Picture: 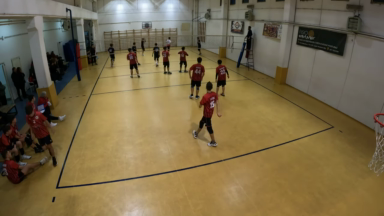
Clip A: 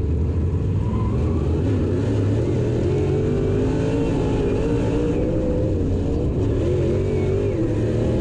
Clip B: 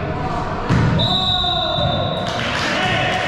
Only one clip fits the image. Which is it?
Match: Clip B